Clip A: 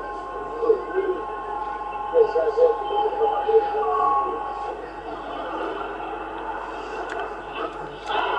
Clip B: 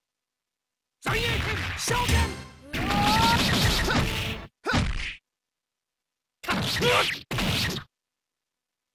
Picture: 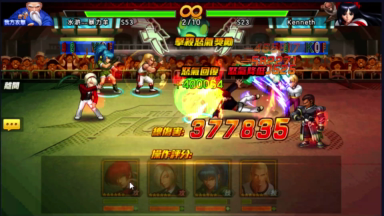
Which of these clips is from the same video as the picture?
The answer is B